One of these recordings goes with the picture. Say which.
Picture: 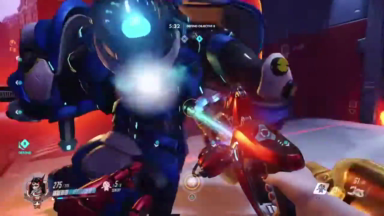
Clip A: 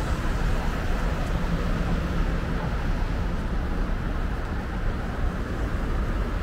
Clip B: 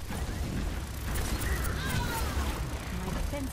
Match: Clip B